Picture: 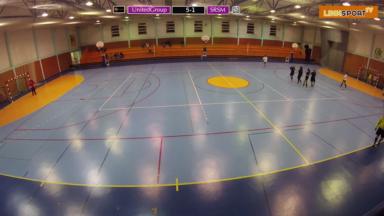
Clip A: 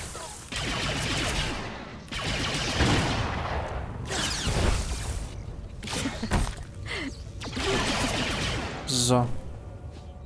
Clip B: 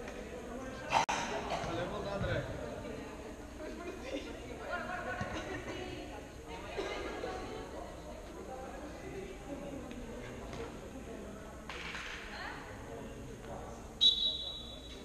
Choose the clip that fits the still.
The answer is B